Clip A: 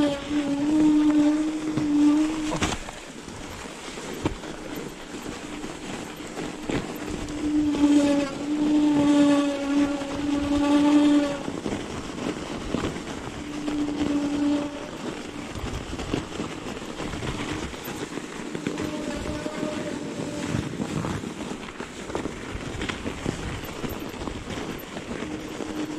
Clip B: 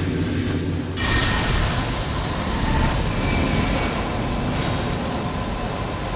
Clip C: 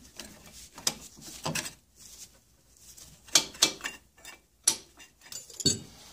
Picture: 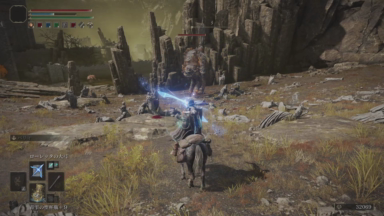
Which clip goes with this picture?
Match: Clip B